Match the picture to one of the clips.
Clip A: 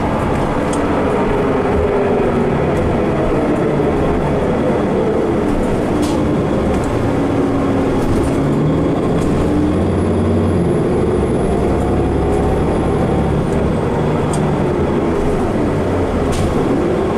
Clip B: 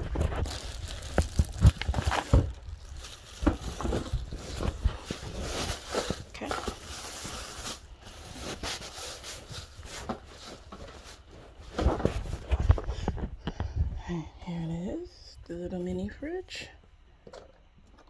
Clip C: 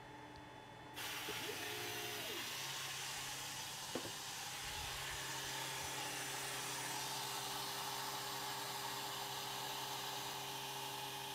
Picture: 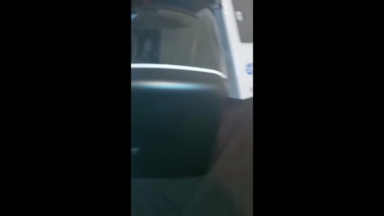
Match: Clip B